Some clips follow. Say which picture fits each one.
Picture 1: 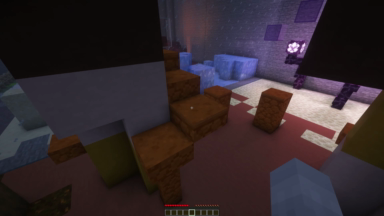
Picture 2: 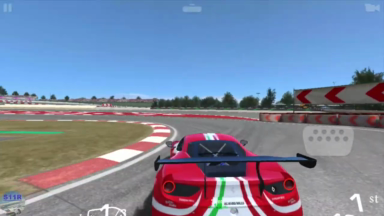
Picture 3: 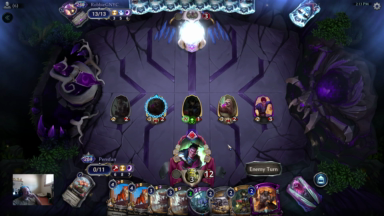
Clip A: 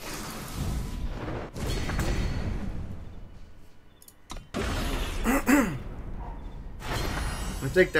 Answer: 3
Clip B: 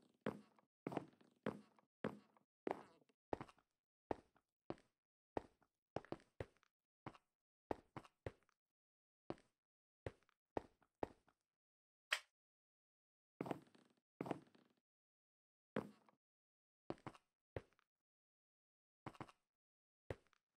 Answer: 1